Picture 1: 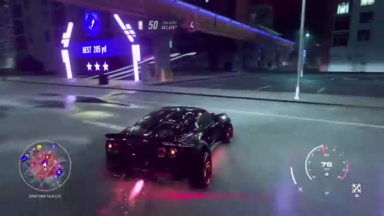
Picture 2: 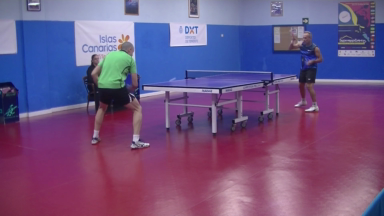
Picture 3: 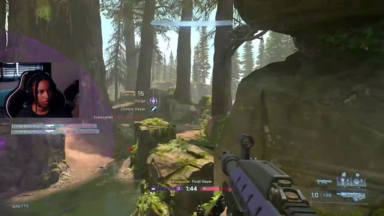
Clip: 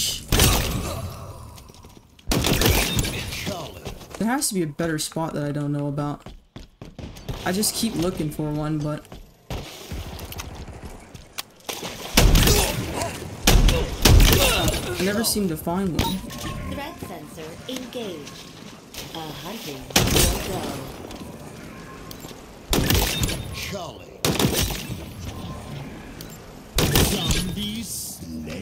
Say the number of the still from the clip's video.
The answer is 3